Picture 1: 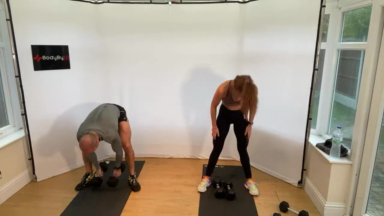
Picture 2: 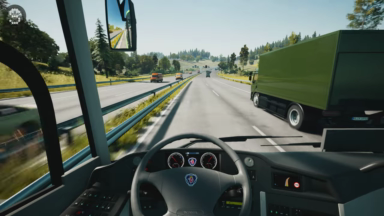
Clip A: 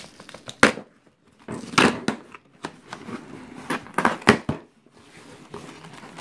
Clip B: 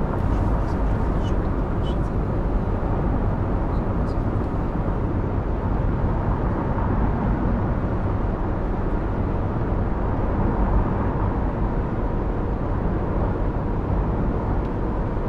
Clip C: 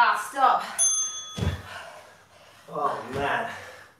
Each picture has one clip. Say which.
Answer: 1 C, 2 B